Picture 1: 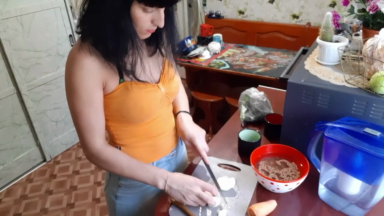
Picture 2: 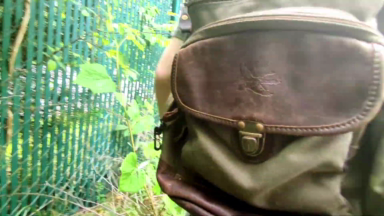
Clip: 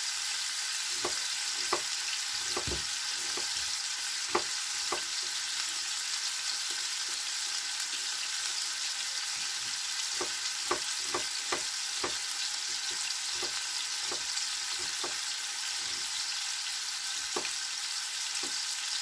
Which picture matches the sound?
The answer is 1